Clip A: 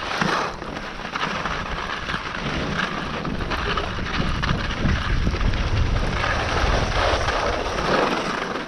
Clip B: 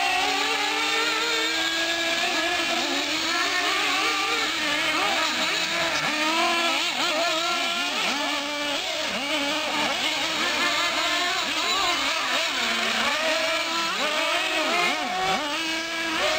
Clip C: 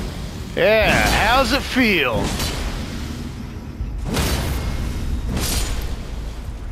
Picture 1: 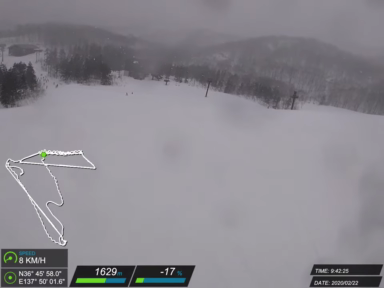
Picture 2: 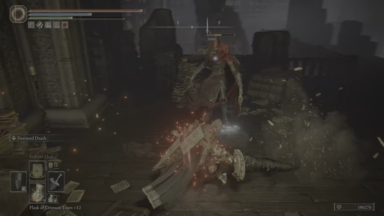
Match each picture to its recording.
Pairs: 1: A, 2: C